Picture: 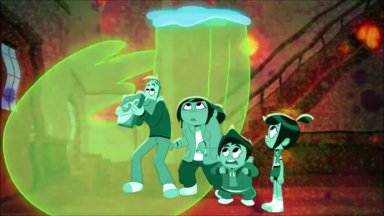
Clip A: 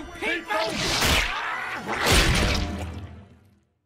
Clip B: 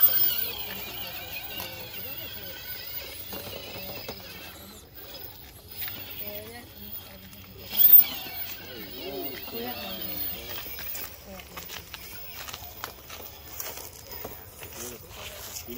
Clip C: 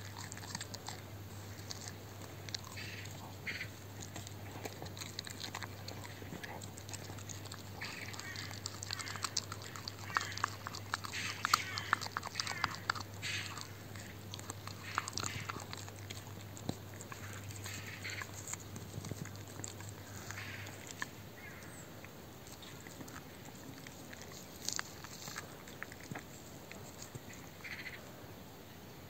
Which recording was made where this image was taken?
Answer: A